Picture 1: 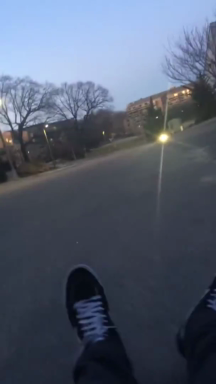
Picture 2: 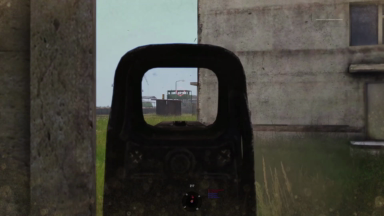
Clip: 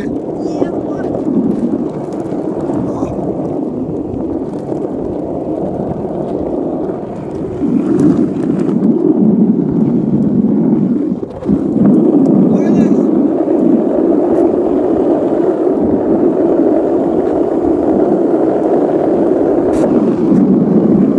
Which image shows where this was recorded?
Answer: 1